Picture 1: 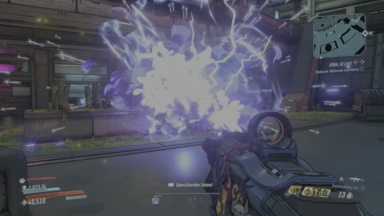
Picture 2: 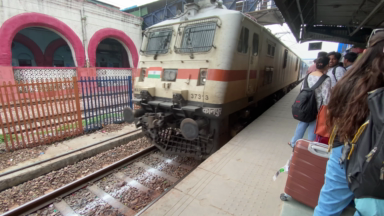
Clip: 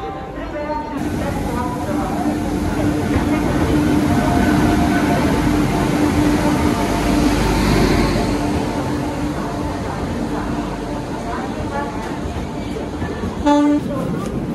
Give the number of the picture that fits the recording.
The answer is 2